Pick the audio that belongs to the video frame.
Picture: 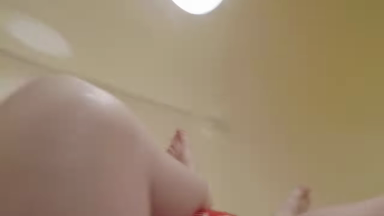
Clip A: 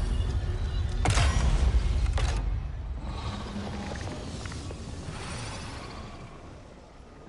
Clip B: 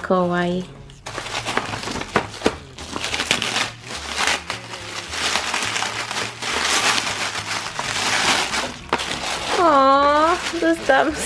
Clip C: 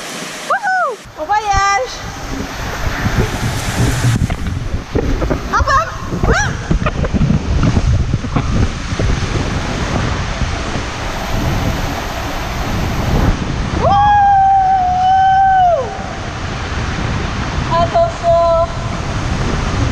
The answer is C